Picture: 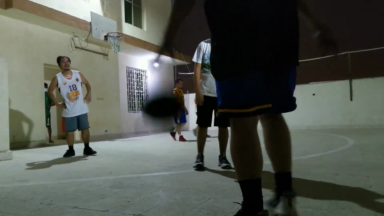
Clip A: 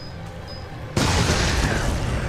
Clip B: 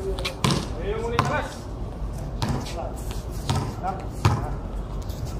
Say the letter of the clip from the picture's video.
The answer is B